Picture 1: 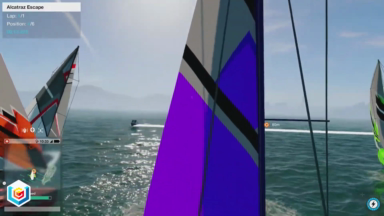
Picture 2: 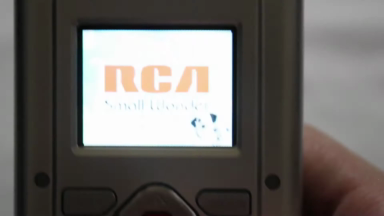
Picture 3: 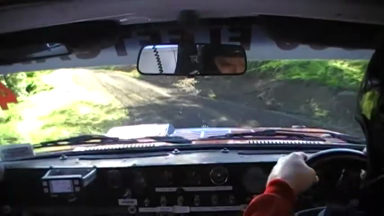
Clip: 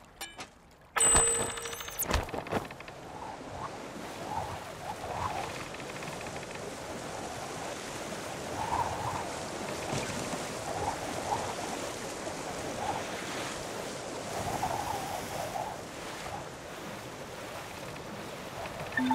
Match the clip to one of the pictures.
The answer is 1